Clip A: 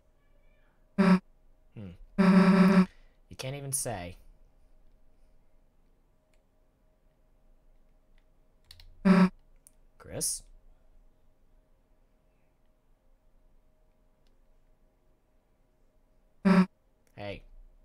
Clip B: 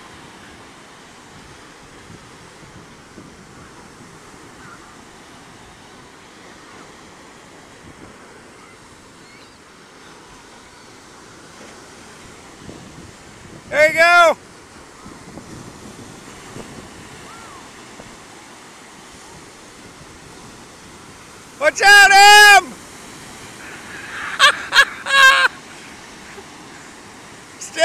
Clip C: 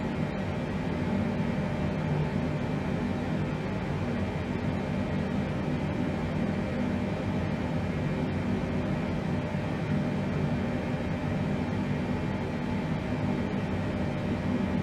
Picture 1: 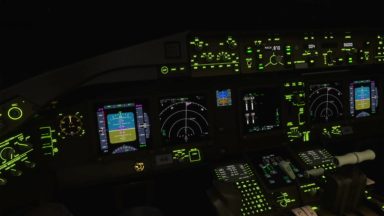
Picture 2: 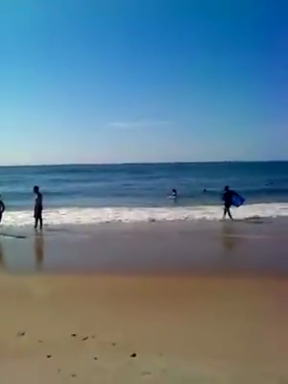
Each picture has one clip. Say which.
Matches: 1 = C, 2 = B